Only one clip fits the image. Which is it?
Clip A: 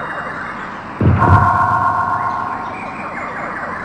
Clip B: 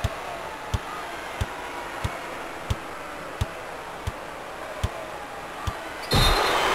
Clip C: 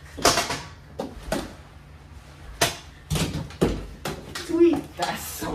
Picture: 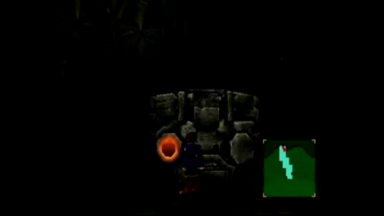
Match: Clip A